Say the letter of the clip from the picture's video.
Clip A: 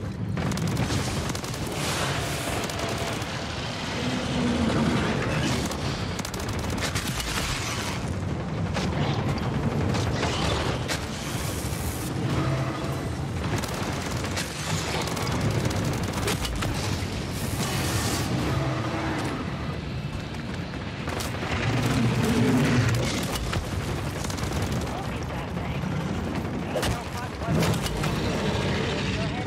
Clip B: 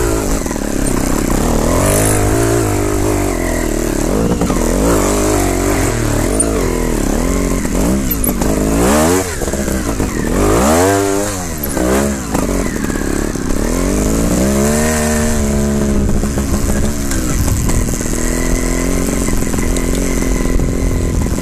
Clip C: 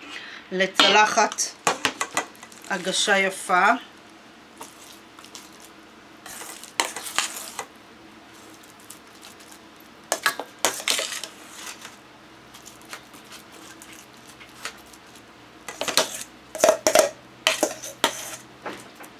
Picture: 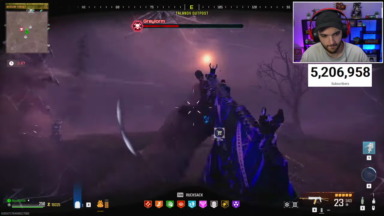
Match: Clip A